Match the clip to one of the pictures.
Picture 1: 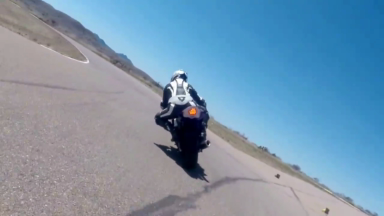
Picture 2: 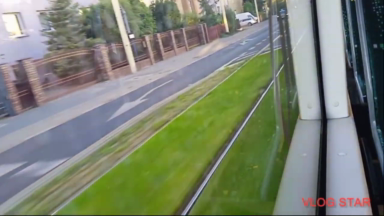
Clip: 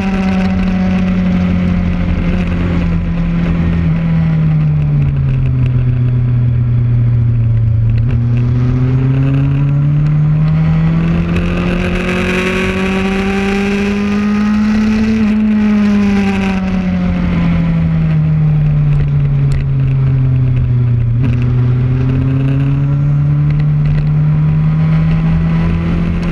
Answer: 1